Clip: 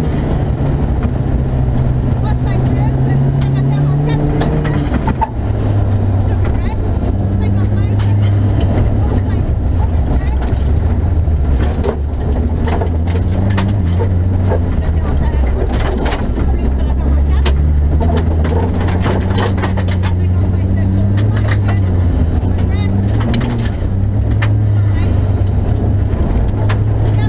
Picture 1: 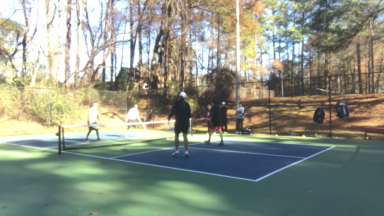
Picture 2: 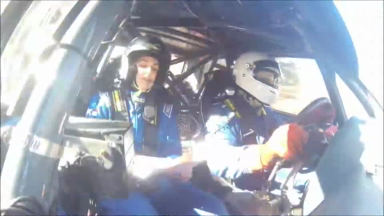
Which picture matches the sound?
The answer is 2